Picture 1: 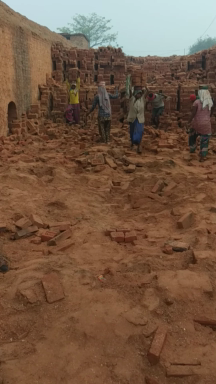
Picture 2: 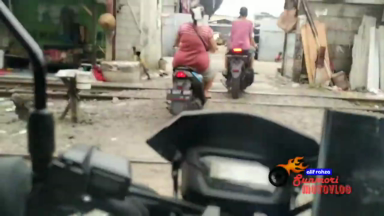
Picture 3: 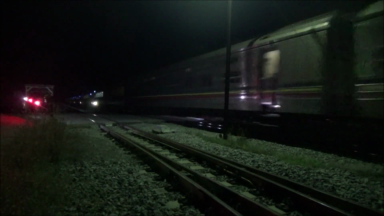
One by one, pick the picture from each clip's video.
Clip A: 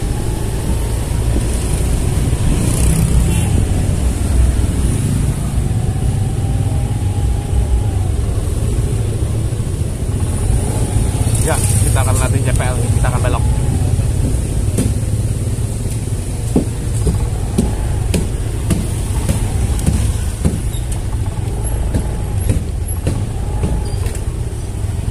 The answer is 2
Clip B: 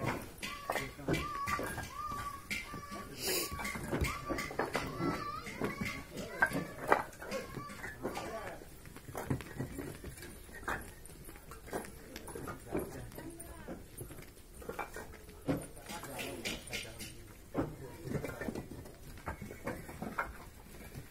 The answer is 1